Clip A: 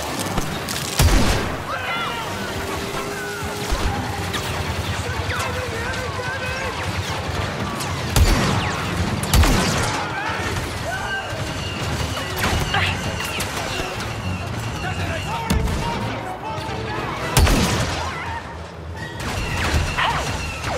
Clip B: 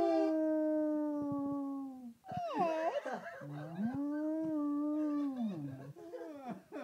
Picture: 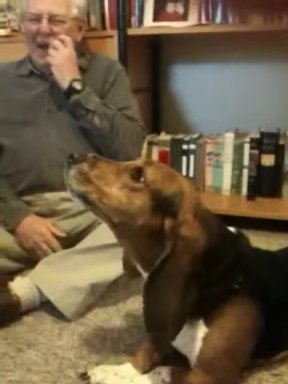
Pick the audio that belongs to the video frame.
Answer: B